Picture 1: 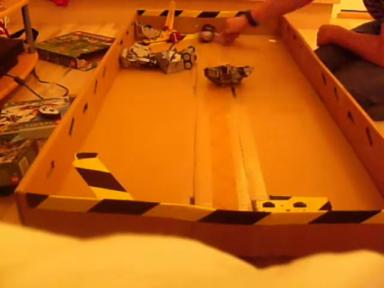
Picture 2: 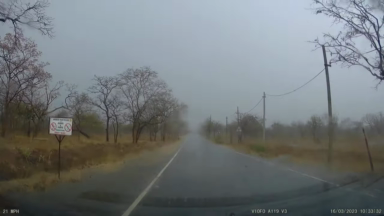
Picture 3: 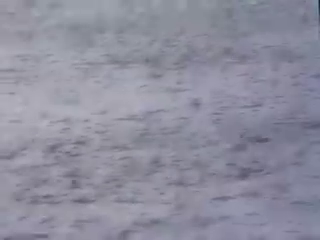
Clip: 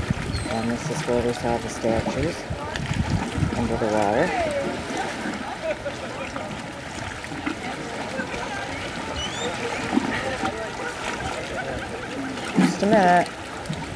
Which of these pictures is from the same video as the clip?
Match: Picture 3